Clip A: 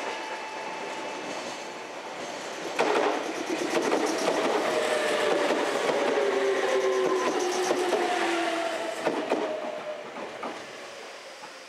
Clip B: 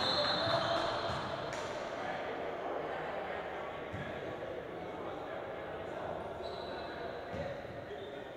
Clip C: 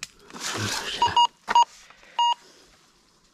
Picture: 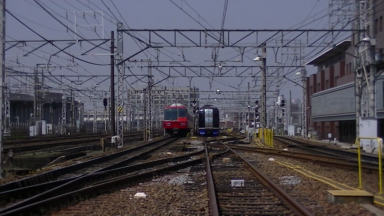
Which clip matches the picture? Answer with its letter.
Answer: A